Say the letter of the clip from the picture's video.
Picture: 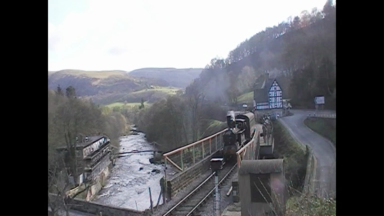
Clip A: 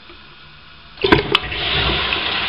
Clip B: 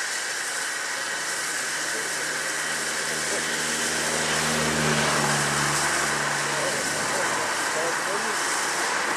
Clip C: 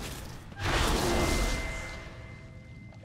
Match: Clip B